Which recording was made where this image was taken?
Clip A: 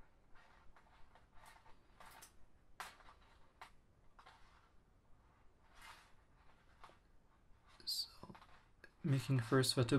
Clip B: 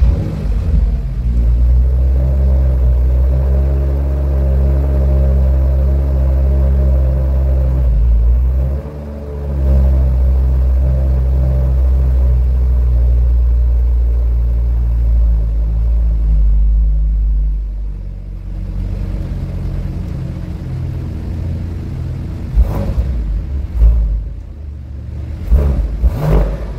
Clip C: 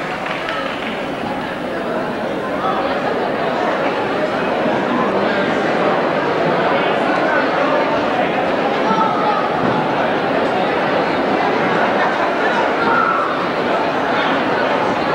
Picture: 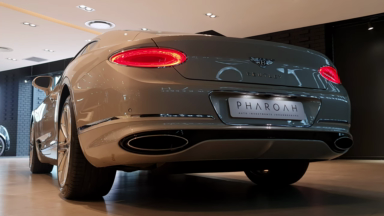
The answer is B